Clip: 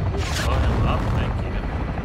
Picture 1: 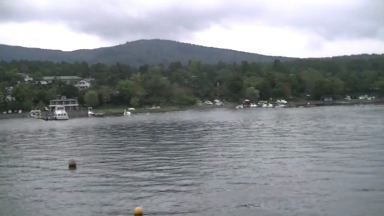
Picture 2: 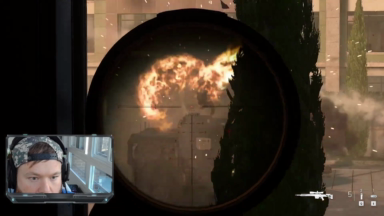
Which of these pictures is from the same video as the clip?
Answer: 2